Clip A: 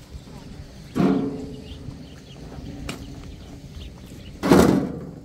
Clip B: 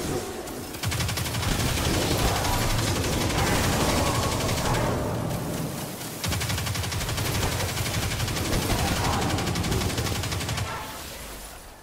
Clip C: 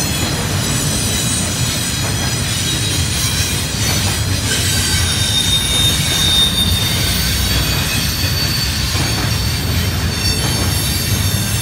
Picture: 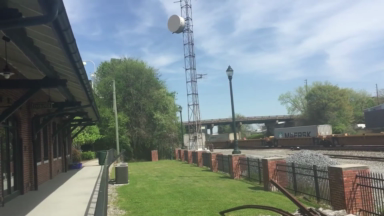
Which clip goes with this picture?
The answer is C